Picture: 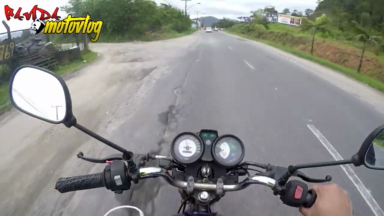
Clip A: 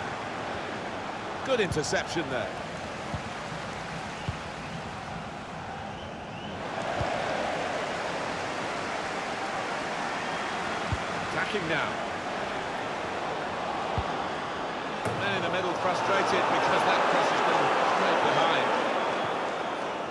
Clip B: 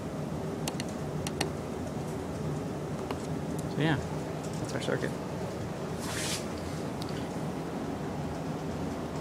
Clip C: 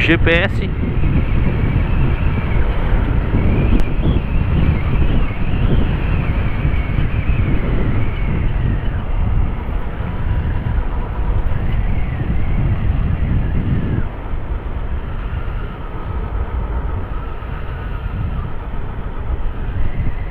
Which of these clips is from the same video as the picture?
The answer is C